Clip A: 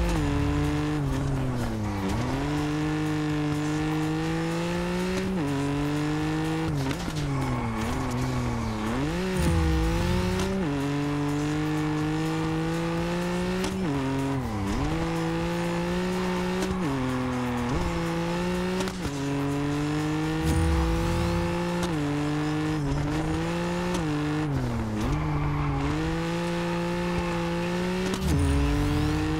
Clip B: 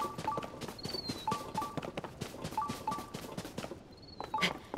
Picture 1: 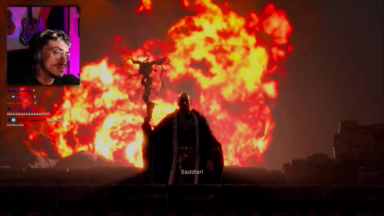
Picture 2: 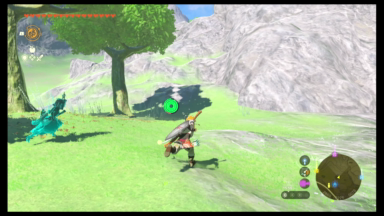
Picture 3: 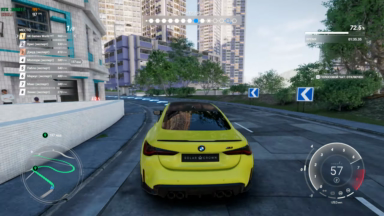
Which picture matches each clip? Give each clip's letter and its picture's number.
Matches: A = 3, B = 2